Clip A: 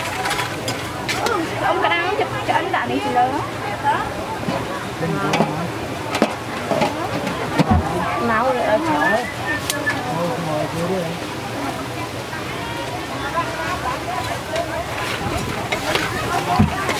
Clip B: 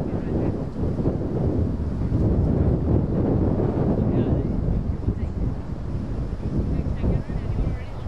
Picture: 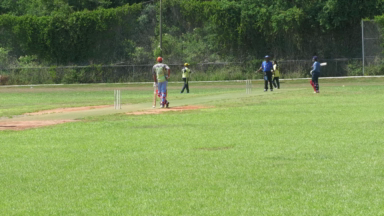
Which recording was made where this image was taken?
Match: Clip B